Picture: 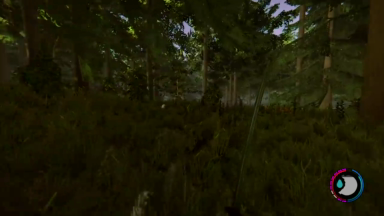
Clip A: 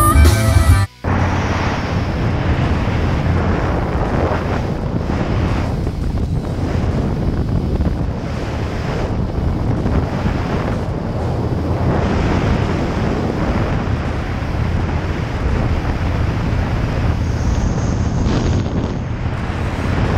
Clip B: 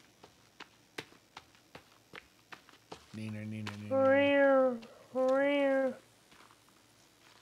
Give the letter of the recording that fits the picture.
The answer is B